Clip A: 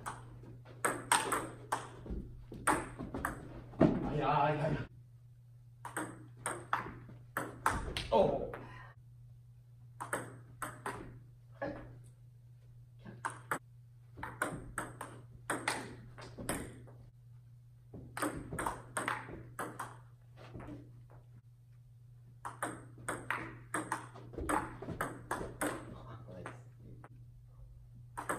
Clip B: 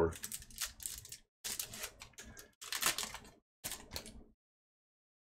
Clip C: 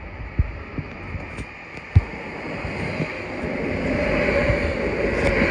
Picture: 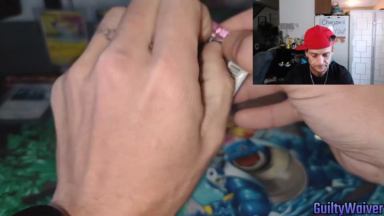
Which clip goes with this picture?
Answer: B